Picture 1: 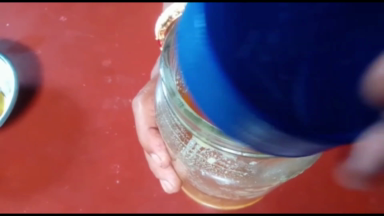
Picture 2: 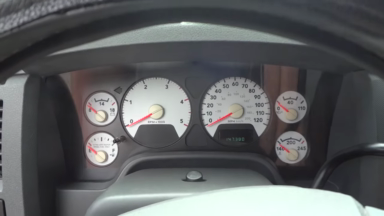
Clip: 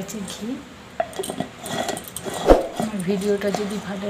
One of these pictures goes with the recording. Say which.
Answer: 1